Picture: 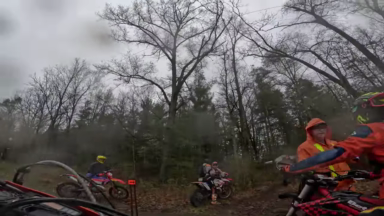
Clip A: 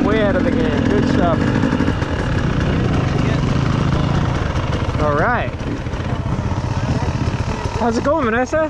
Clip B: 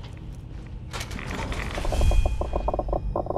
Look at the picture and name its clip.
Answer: A